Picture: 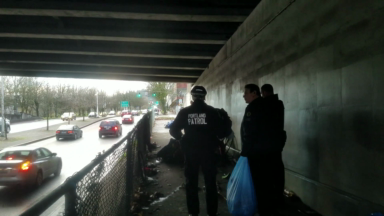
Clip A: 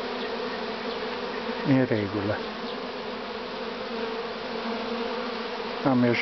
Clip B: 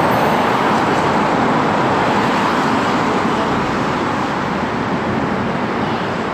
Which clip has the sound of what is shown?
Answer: B